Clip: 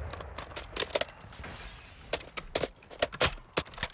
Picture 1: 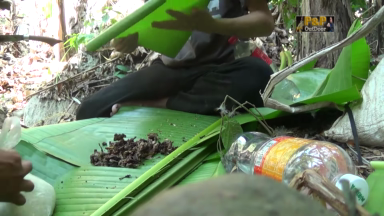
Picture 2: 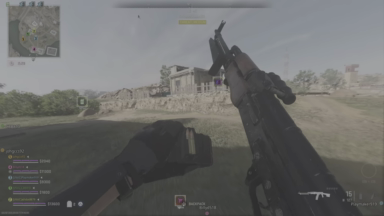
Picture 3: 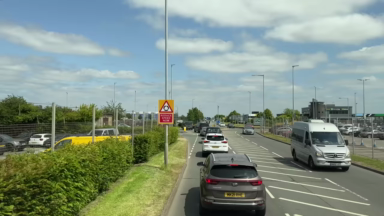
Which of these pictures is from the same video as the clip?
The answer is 2